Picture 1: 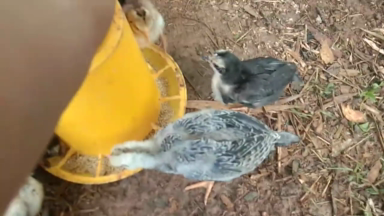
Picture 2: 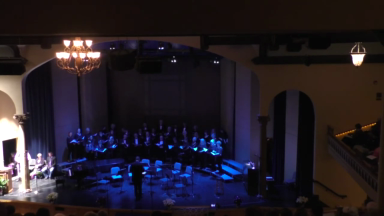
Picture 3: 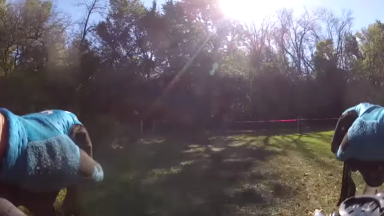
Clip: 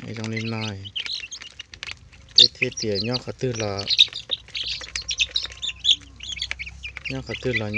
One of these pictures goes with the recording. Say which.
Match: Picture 1